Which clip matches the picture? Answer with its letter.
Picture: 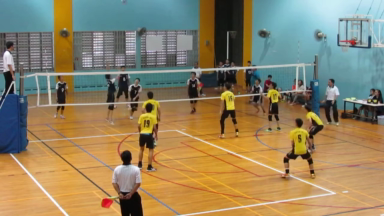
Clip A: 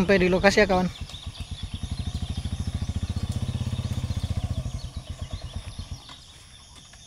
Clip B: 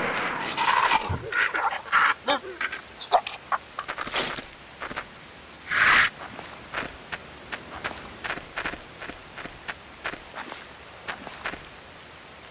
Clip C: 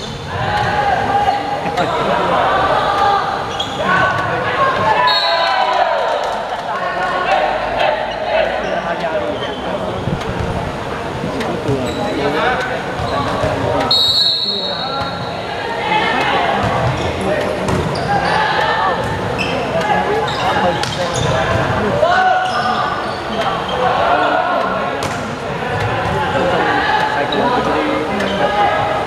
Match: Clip C